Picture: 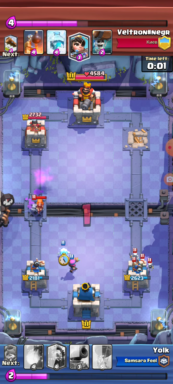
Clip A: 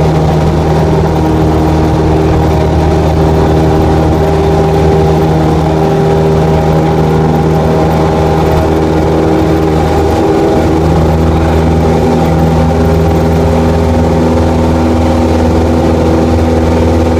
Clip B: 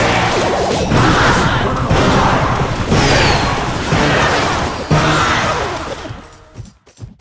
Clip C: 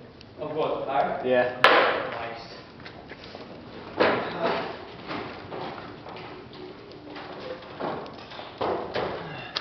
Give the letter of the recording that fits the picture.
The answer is B